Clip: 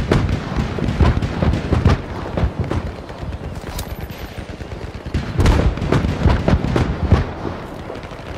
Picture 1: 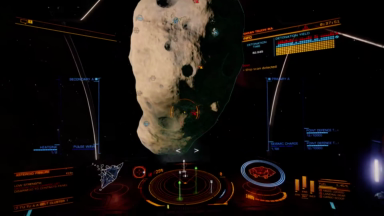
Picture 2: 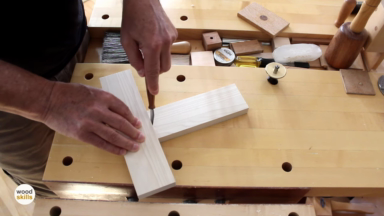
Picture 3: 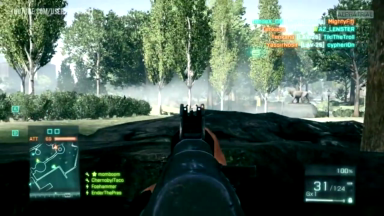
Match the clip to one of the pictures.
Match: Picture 3